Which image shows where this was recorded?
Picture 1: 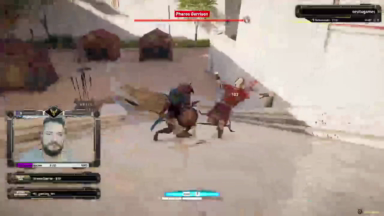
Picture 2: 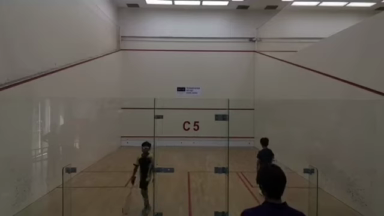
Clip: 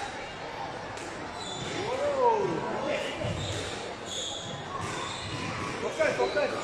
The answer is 2